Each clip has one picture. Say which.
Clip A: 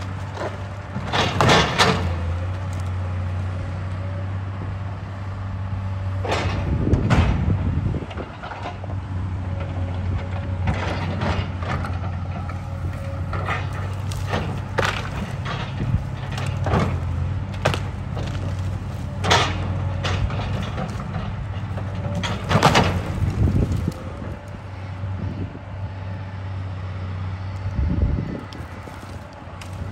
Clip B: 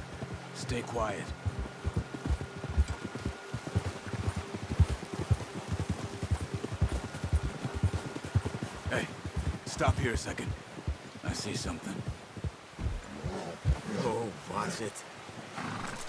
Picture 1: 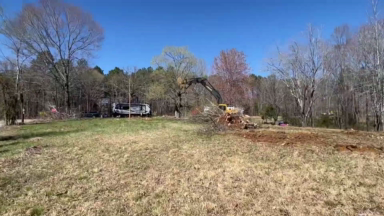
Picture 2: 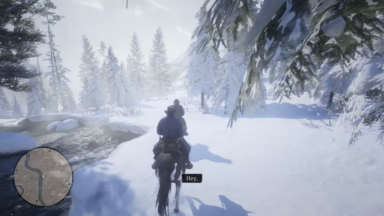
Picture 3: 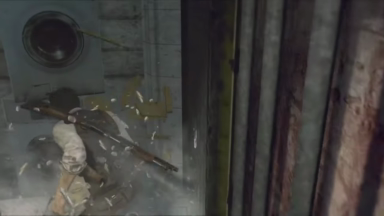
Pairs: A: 1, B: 2